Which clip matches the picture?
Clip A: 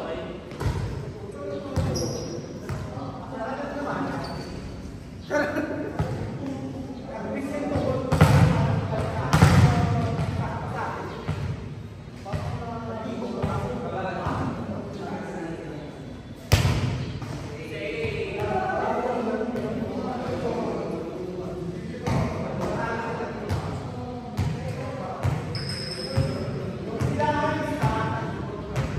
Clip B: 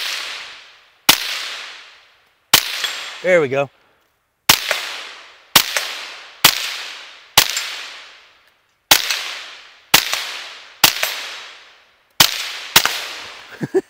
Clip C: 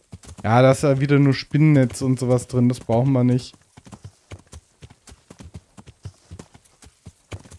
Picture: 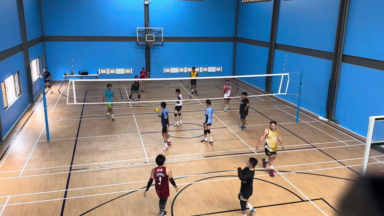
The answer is A